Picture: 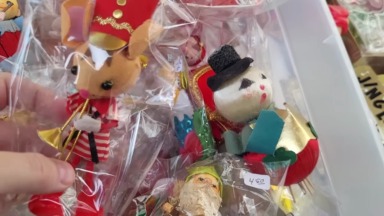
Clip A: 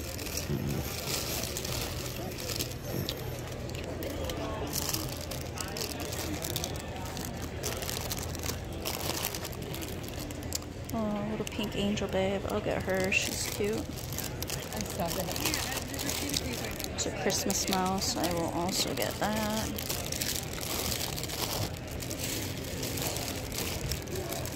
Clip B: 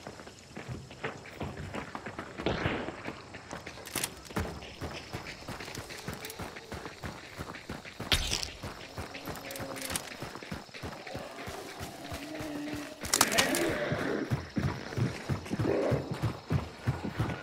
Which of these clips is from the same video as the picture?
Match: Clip A